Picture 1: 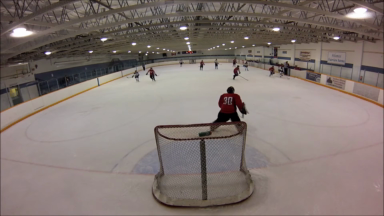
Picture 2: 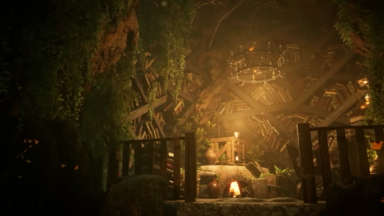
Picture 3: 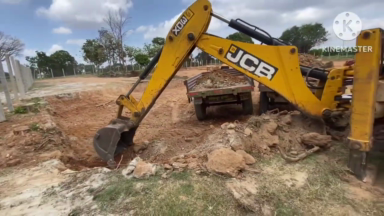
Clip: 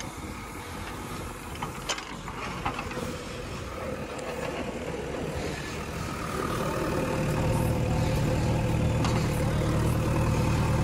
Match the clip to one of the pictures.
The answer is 3